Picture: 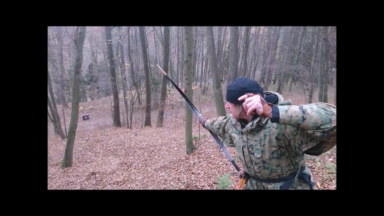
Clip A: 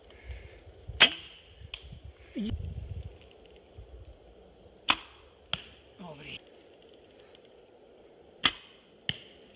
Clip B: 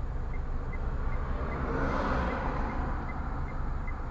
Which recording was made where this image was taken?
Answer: A